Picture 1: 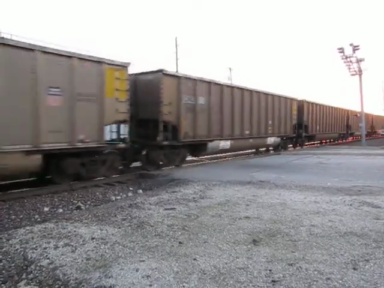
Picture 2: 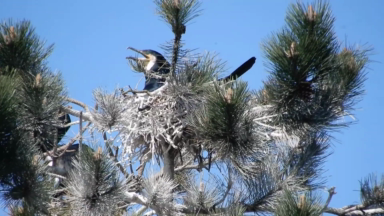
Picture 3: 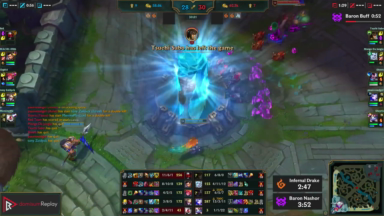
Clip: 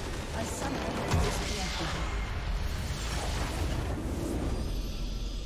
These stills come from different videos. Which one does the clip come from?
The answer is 3